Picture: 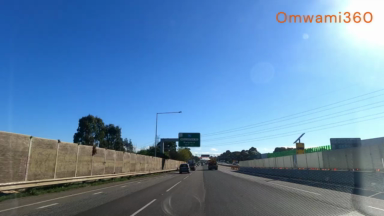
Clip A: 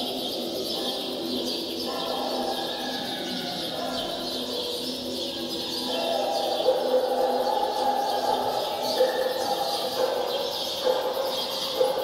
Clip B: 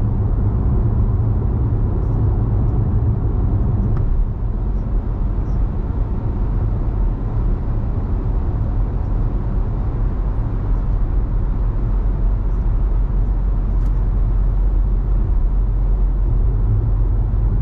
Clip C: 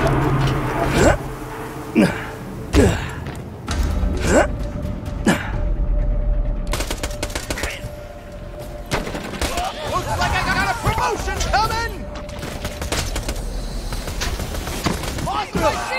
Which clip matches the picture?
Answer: B